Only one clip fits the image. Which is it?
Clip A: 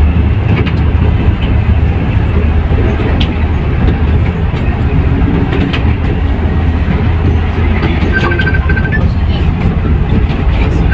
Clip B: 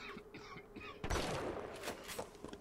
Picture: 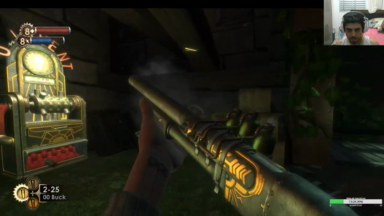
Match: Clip B